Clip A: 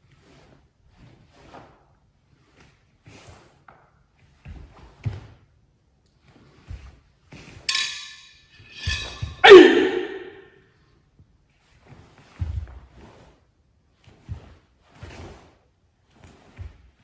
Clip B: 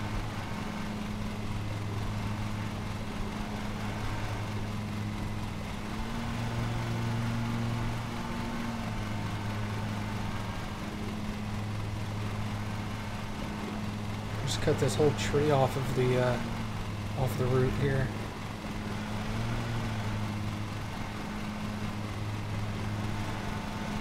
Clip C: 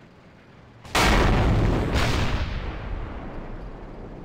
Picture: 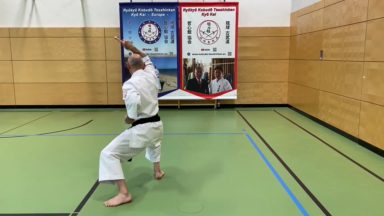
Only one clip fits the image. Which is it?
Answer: A